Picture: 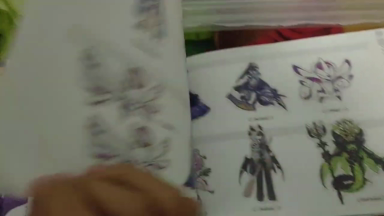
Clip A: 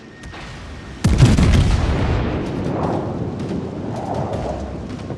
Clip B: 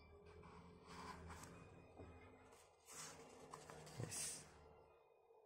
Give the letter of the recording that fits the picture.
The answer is B